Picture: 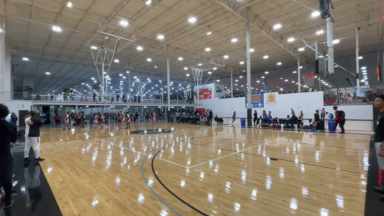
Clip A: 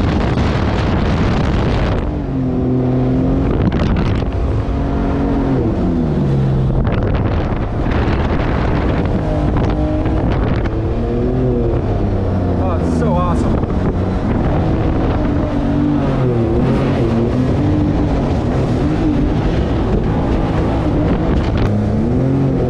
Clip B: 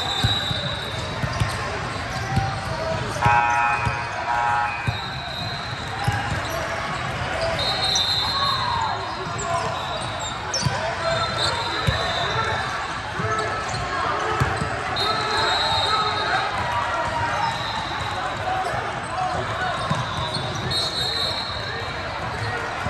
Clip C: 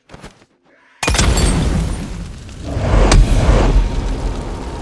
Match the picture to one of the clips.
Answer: B